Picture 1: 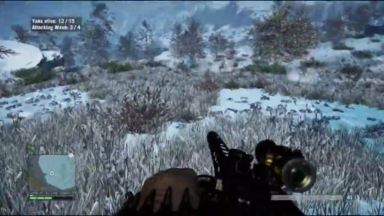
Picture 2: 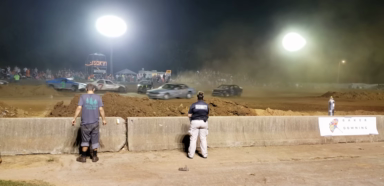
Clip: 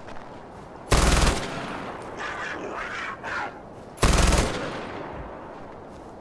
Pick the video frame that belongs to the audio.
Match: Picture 1